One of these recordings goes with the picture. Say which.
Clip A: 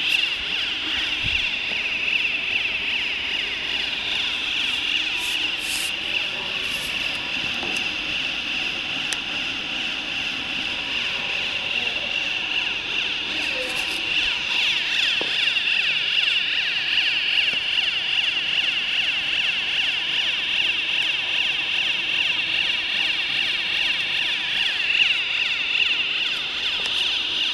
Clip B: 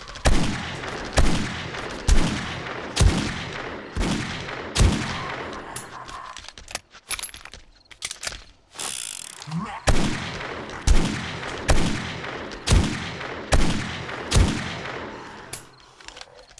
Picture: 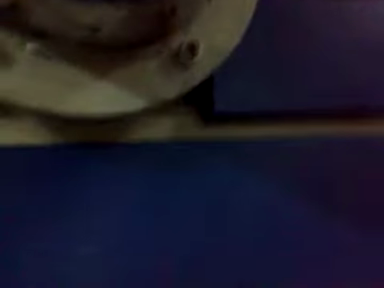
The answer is A